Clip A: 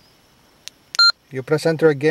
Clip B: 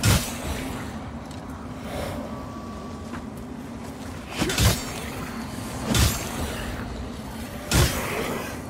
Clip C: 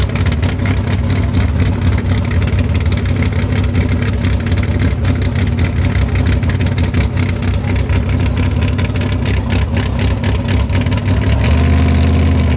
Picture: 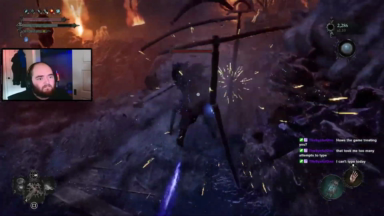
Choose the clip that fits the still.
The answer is B